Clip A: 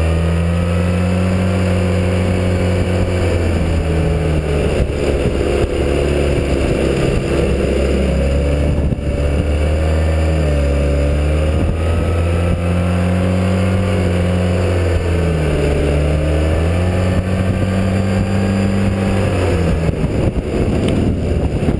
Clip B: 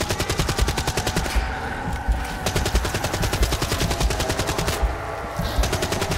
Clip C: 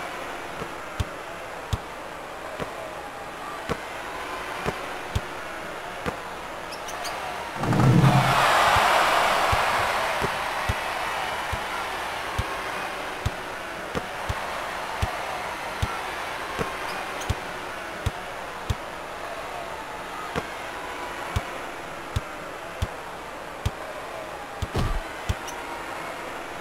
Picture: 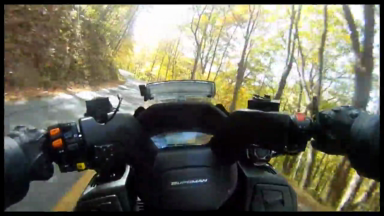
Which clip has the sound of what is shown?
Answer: A